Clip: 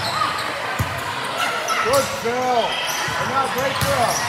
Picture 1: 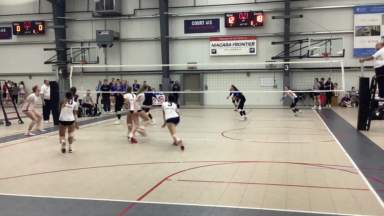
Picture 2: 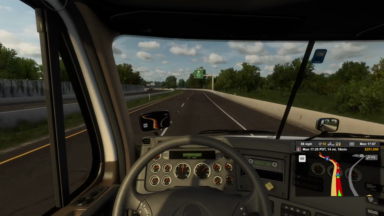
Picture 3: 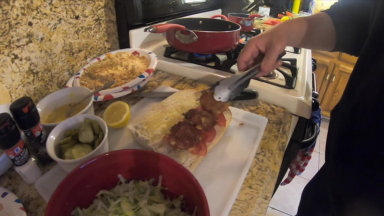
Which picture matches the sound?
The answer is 1